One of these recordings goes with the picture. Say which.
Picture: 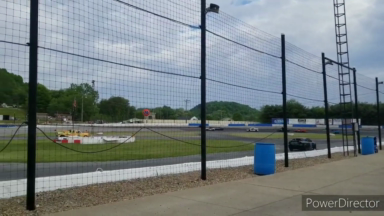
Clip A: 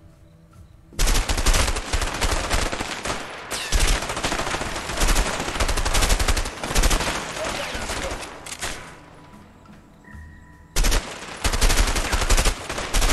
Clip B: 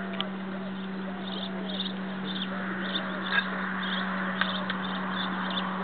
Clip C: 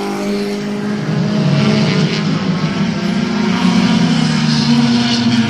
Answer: C